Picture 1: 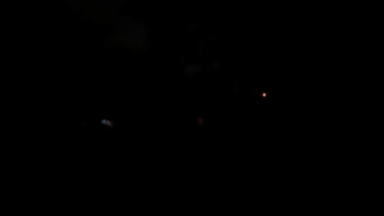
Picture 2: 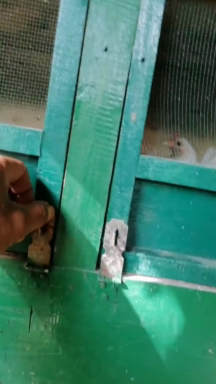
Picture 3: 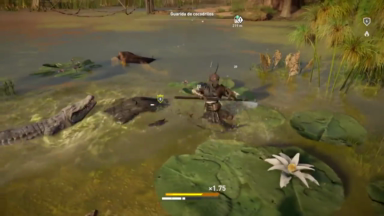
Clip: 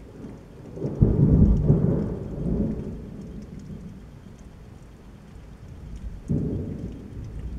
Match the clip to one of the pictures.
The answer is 1